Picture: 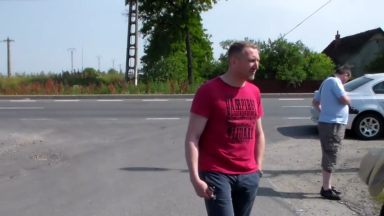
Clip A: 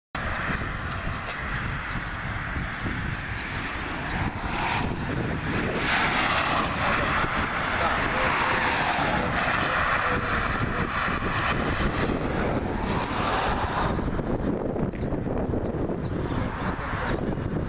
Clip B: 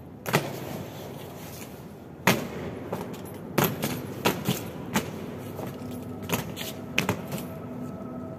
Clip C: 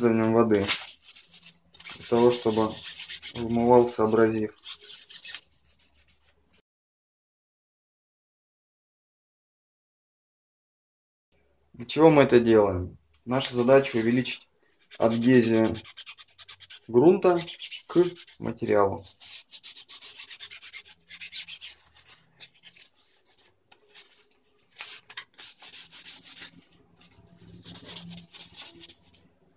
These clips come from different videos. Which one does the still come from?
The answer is A